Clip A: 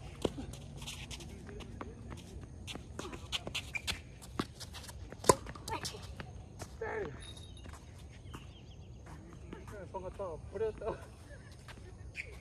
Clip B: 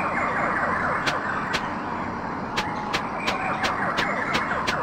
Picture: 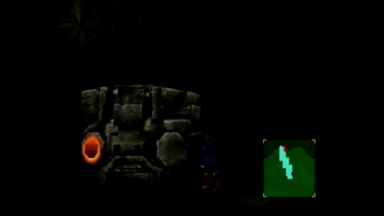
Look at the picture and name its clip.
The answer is B